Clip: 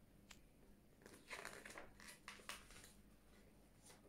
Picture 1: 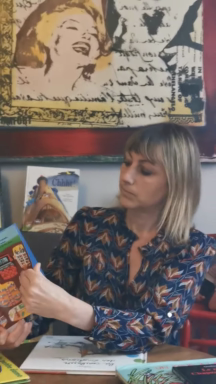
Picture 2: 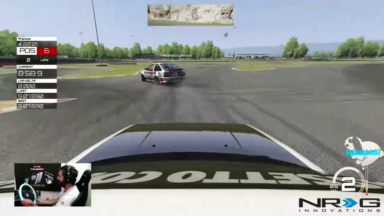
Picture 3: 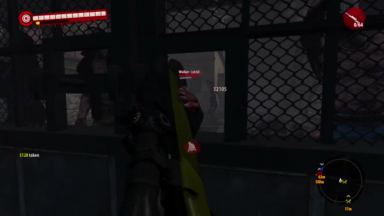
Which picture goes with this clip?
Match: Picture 1